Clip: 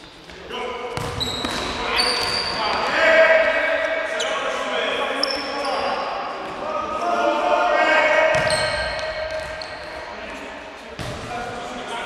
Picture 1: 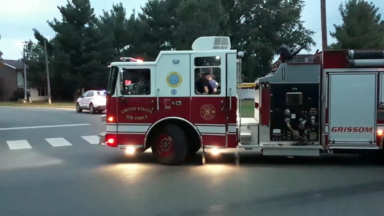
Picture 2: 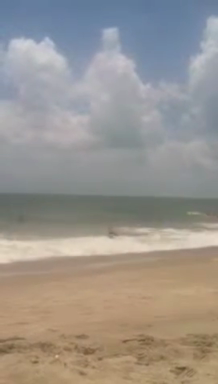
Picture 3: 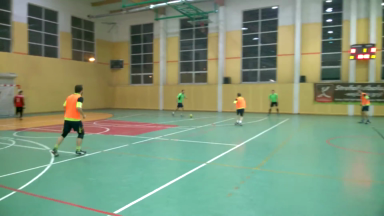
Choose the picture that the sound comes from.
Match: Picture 3